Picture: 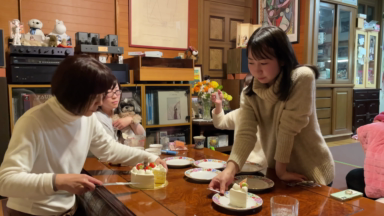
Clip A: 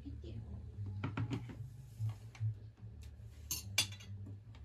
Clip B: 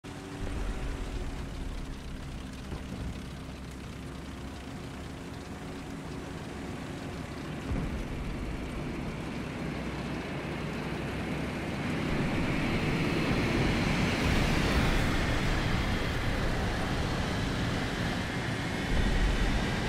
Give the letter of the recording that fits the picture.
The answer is A